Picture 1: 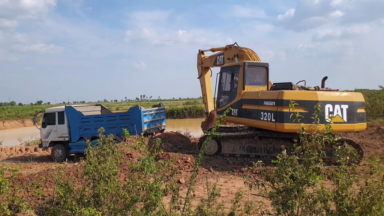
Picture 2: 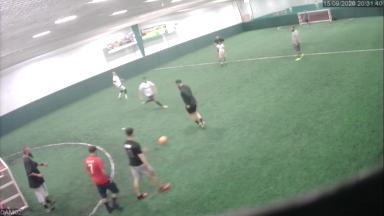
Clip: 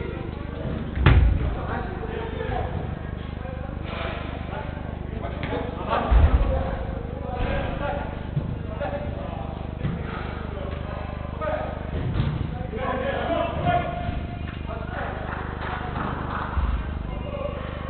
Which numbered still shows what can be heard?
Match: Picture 2